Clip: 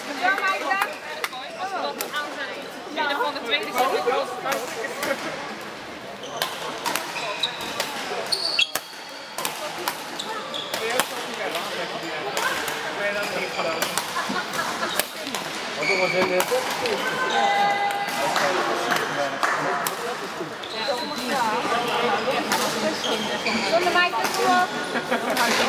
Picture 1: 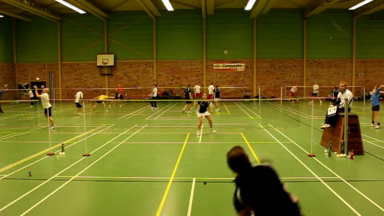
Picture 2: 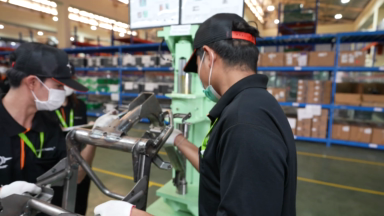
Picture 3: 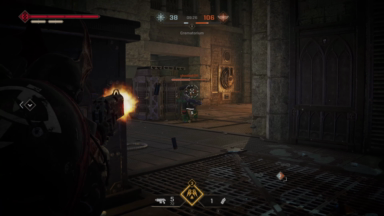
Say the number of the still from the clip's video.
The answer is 1